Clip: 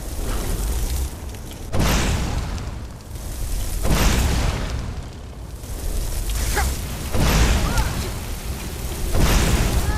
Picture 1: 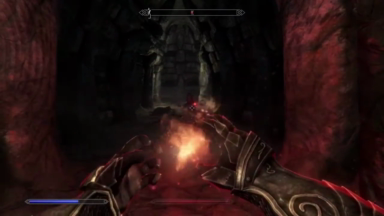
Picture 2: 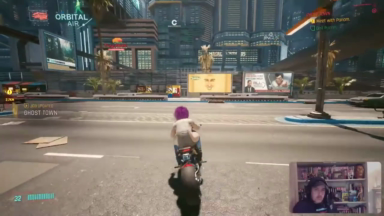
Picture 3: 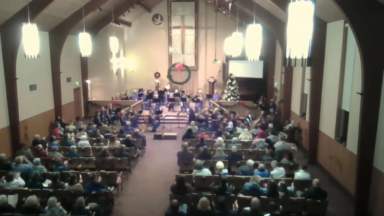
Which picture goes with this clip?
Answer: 1